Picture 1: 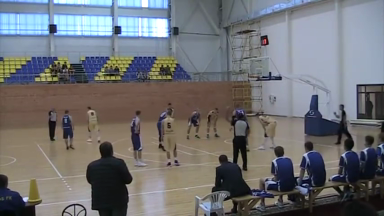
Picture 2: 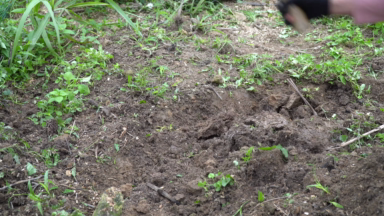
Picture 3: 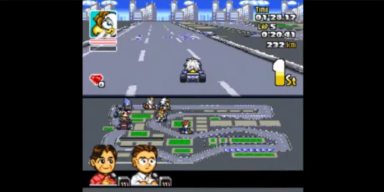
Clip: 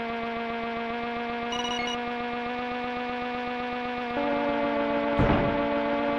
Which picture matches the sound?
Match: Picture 3